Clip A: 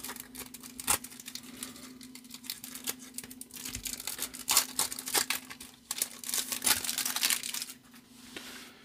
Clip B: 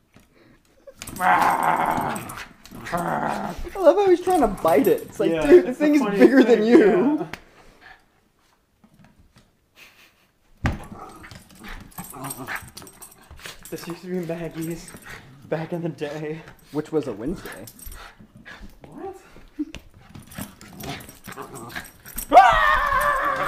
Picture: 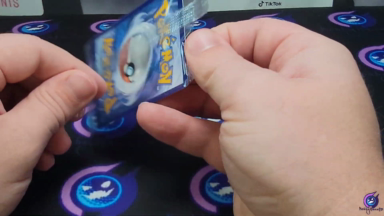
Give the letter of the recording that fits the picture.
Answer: A